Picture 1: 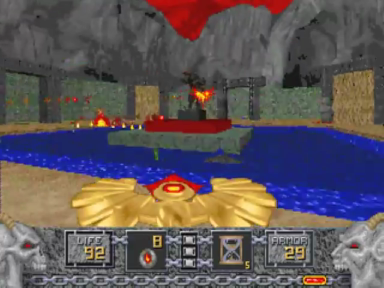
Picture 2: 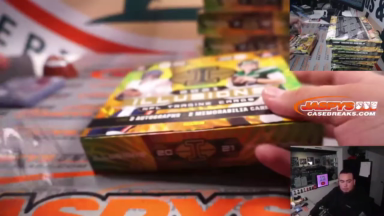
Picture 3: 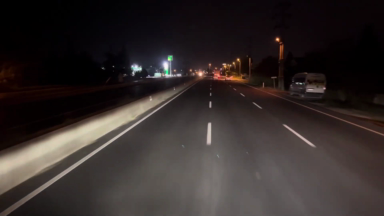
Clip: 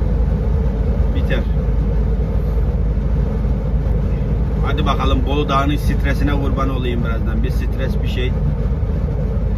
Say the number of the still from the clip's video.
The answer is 3